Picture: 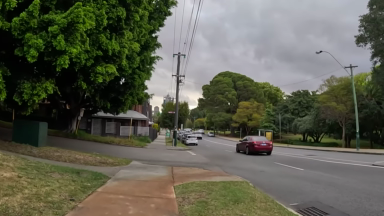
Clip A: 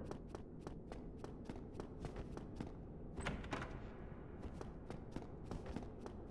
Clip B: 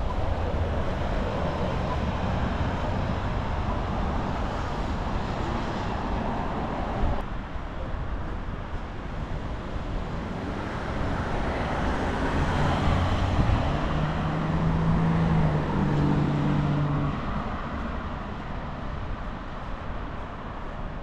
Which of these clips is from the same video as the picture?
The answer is B